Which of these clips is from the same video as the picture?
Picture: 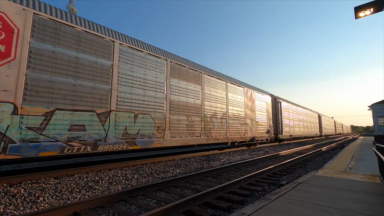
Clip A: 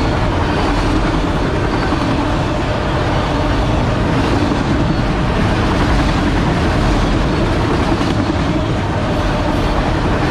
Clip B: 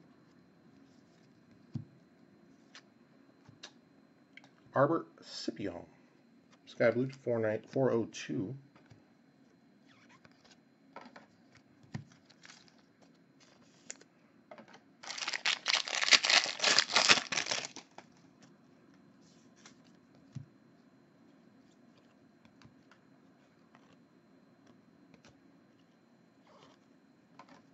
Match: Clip A